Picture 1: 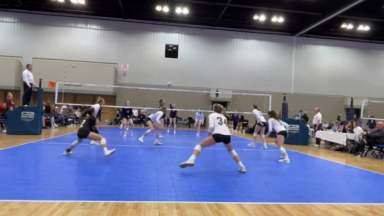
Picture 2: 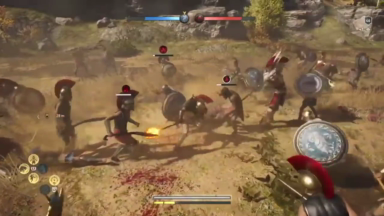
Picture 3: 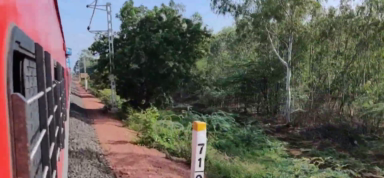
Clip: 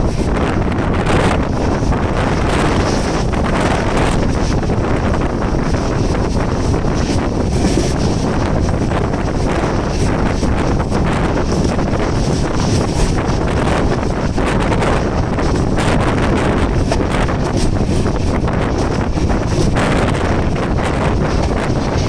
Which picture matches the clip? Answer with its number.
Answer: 3